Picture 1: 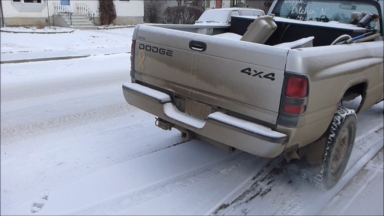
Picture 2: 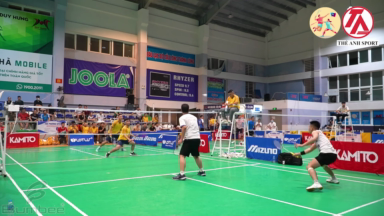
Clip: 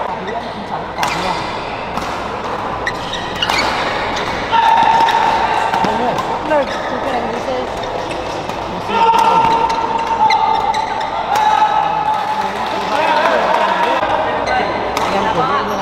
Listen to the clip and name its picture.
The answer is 2